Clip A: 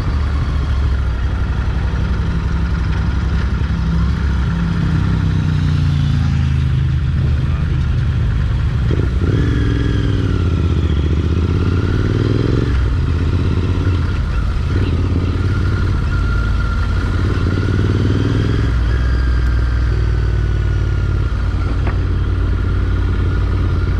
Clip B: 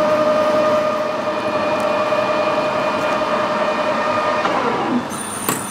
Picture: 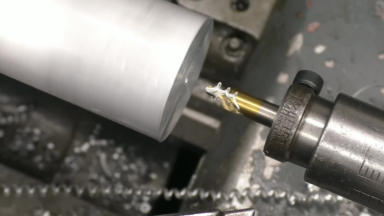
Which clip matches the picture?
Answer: B